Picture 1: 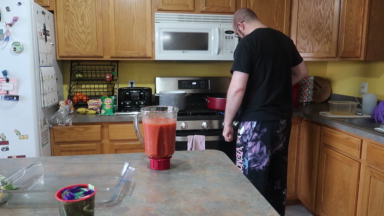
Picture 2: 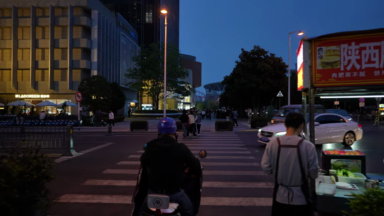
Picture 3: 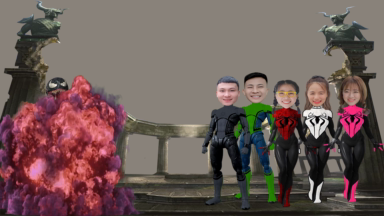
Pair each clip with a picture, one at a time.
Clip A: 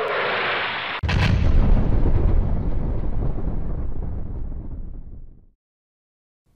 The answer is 3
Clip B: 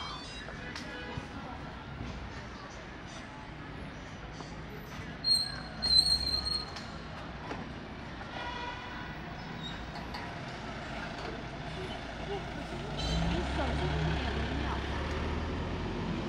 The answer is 2